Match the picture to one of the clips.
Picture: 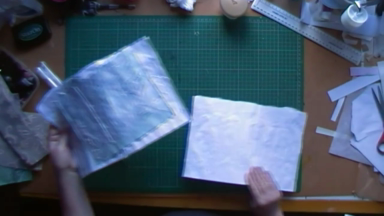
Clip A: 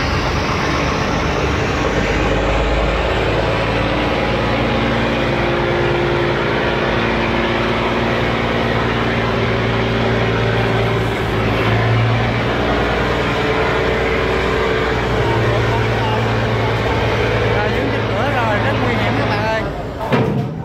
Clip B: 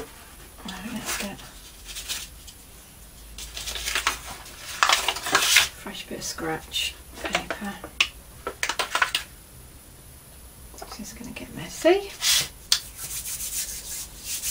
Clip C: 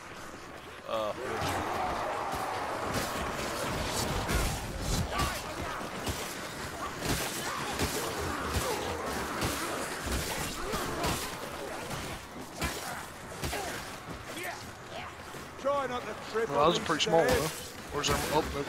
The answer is B